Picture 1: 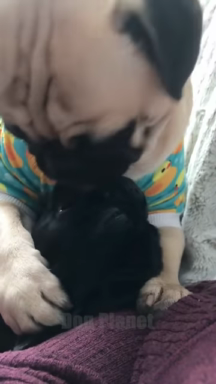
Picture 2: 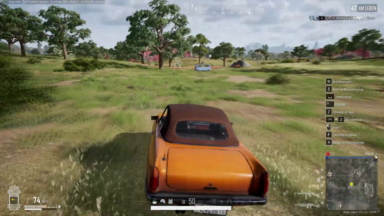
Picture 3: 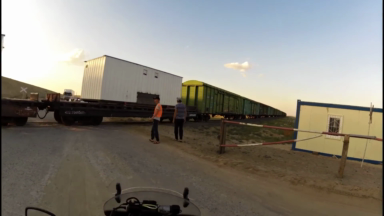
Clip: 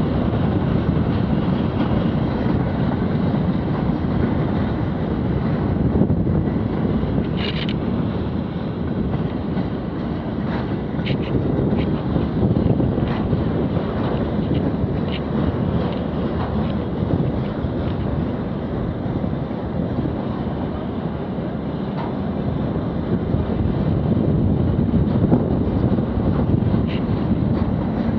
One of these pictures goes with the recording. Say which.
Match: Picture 3